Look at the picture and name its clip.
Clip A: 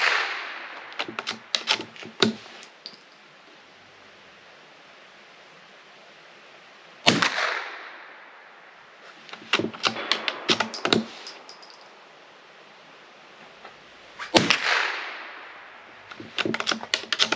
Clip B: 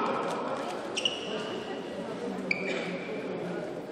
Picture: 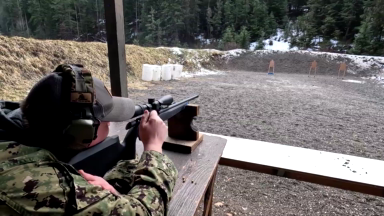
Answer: A